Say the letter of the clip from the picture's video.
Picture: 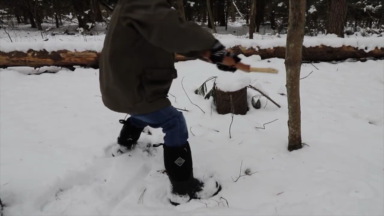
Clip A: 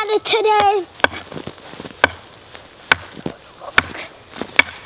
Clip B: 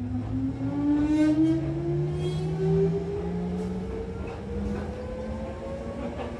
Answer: A